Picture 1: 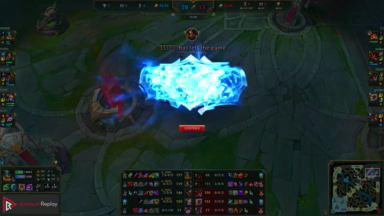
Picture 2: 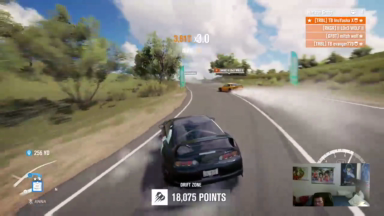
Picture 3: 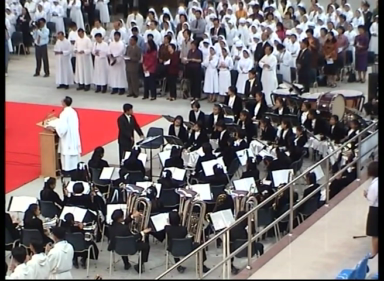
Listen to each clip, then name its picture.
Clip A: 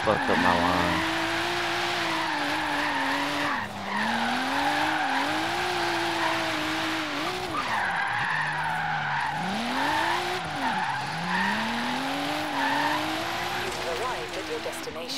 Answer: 2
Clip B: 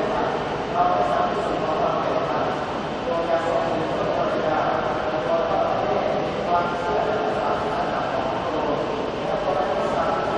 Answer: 3